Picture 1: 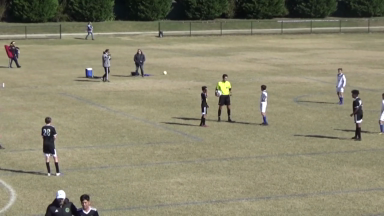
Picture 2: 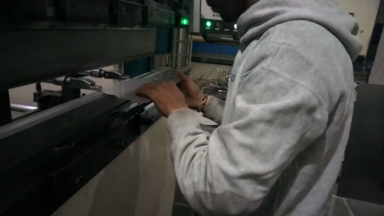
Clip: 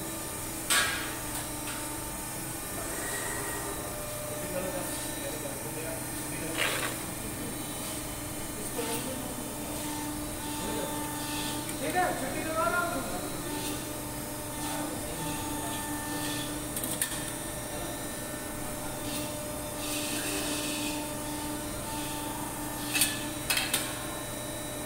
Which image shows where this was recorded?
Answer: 2